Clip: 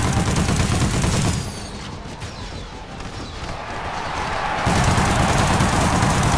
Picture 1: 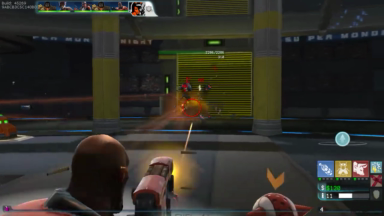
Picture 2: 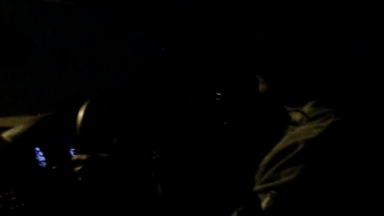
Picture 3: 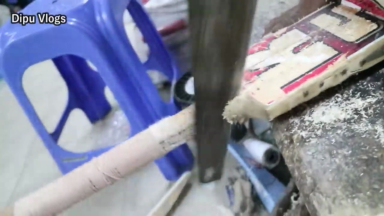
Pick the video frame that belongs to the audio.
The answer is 1